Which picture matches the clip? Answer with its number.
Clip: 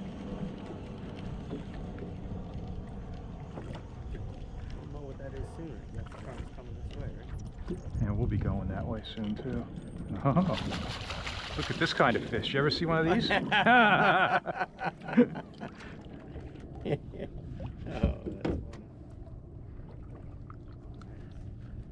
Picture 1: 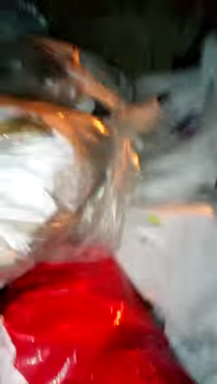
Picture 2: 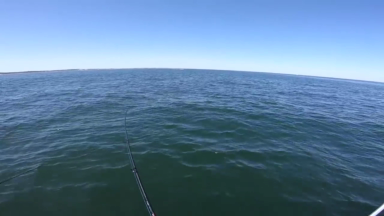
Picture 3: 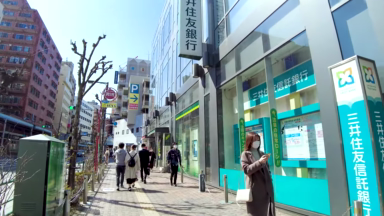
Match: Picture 2